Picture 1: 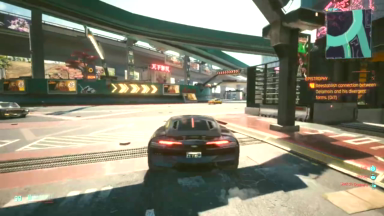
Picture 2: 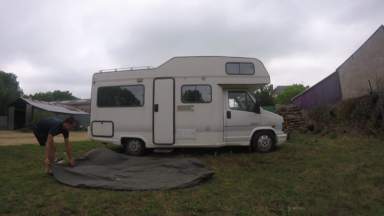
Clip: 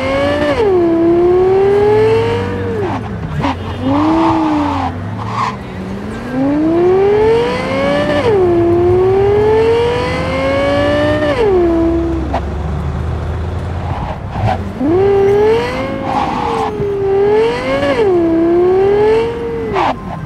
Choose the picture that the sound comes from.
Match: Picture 1